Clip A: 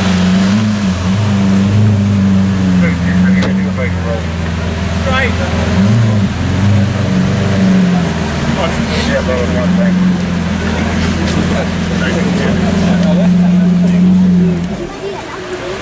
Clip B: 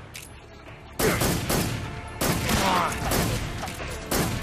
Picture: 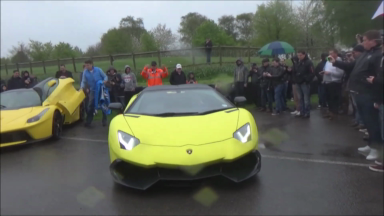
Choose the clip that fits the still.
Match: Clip A